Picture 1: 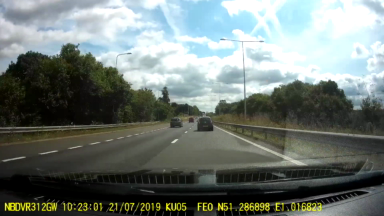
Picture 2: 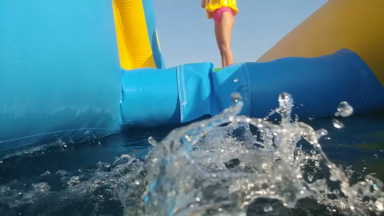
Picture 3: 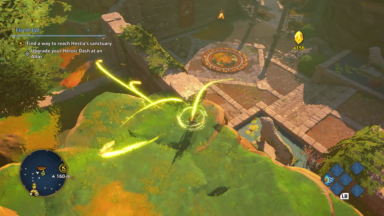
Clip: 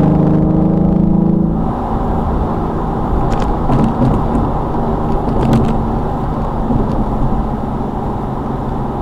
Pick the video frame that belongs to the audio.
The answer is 1